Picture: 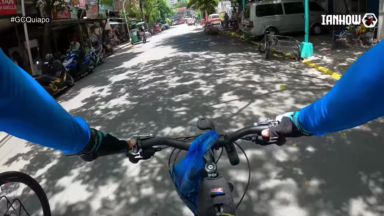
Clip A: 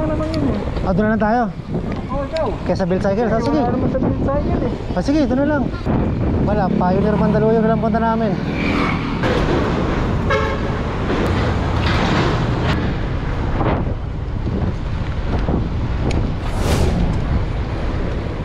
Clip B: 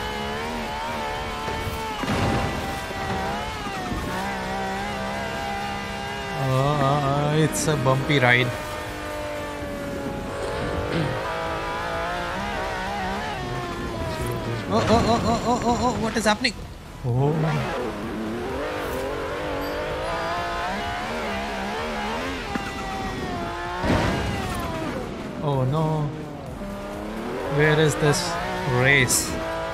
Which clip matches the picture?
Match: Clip A